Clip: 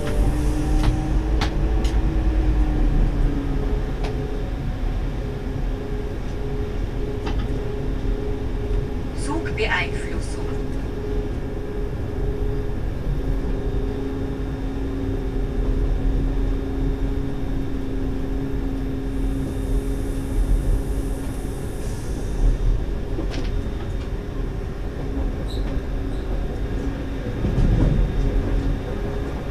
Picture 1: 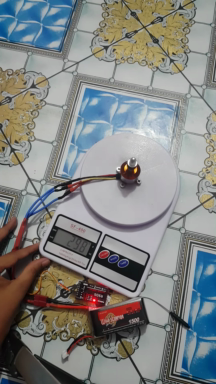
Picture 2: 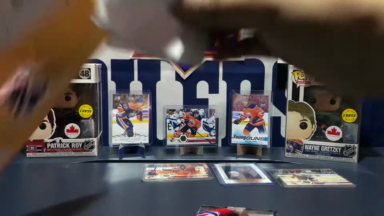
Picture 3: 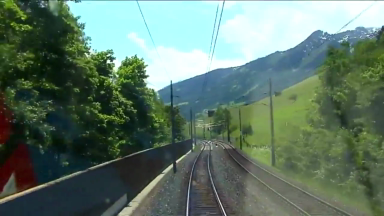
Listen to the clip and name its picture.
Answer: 3